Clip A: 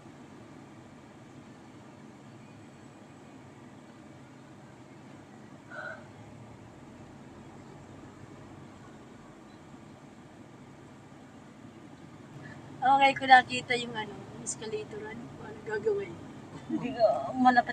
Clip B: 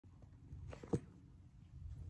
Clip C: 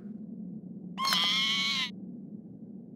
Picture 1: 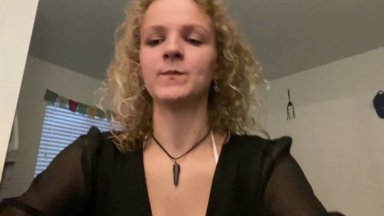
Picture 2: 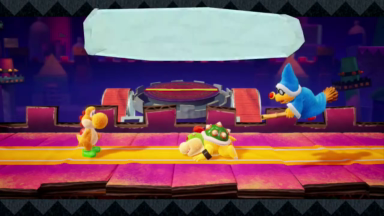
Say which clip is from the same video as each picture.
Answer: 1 B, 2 C